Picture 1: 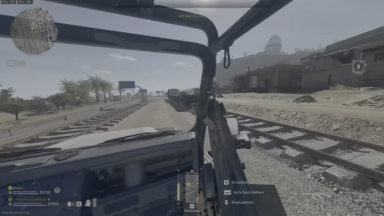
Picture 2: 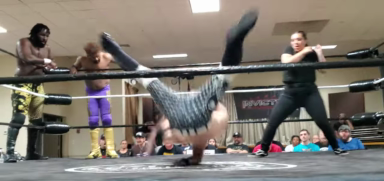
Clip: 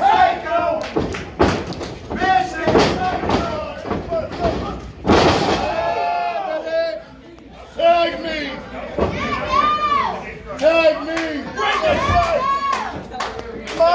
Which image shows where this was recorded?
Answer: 2